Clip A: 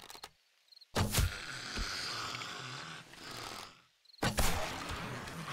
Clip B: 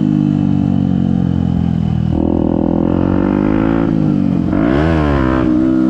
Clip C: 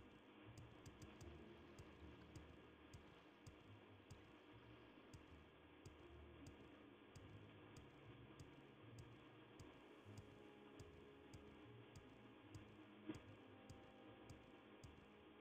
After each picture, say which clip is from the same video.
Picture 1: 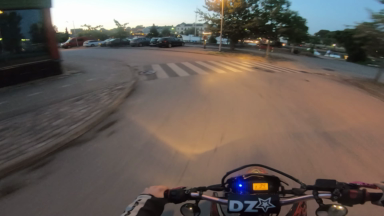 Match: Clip B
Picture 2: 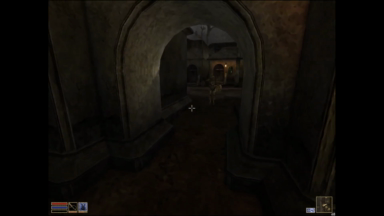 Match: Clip C